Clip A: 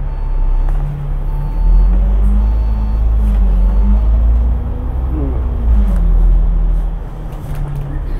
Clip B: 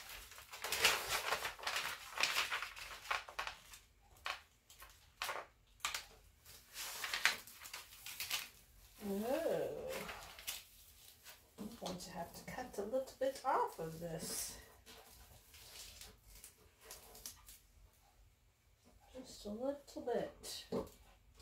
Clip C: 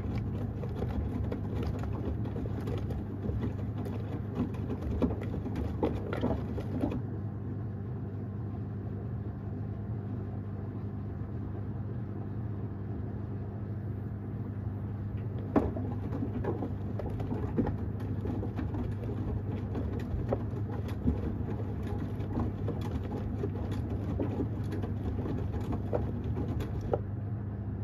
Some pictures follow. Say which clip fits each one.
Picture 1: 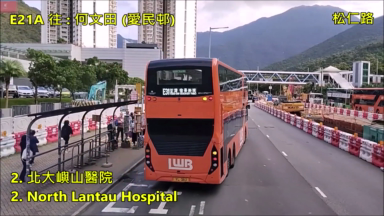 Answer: A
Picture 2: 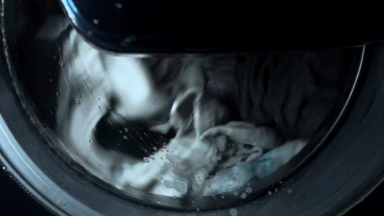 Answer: C